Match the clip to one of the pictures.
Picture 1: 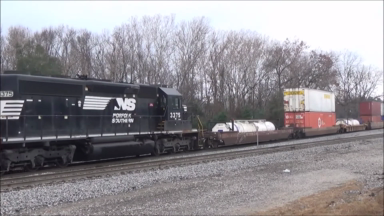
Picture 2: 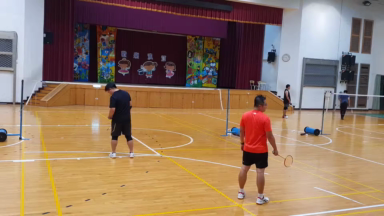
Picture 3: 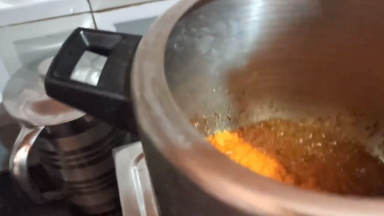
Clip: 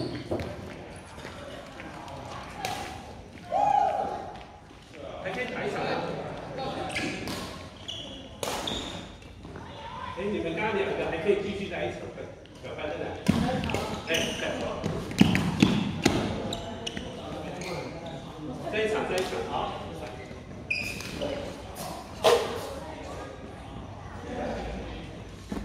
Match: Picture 2